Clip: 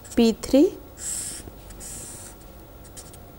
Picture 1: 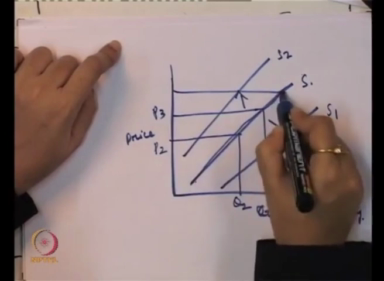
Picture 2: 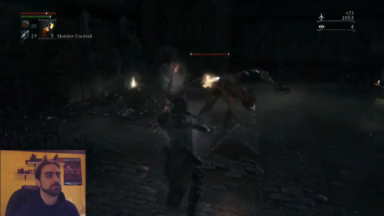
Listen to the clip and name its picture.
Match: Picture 1